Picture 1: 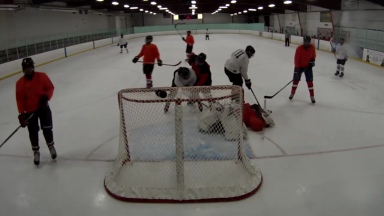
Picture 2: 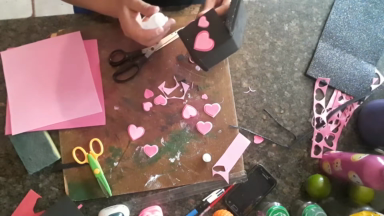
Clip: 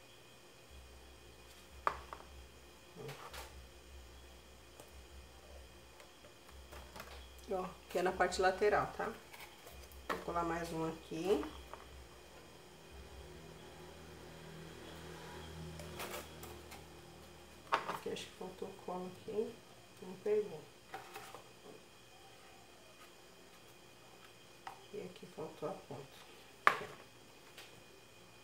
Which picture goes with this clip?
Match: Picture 2